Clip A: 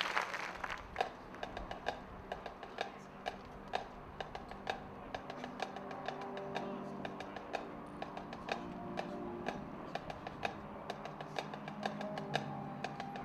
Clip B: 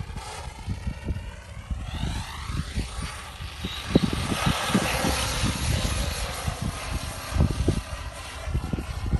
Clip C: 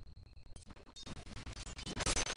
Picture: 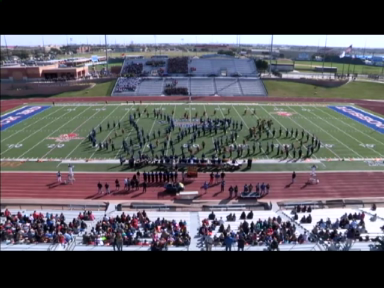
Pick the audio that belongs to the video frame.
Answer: A